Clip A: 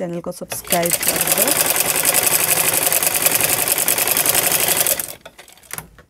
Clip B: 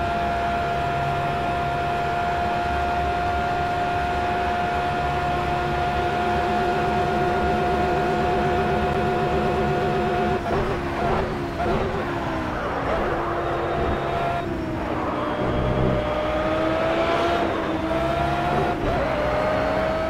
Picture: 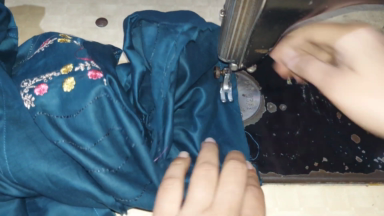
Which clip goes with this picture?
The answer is A